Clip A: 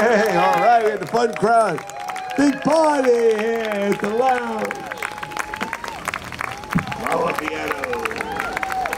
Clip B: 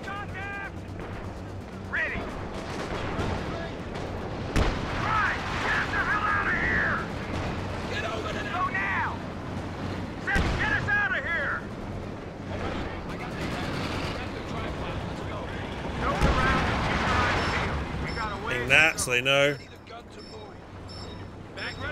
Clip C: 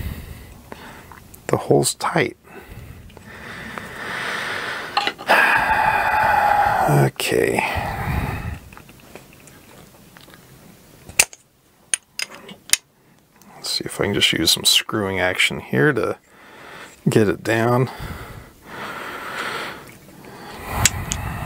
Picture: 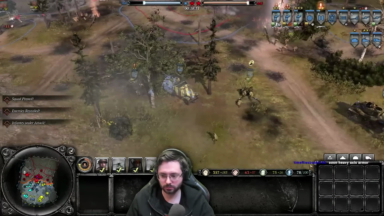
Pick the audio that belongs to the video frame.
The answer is B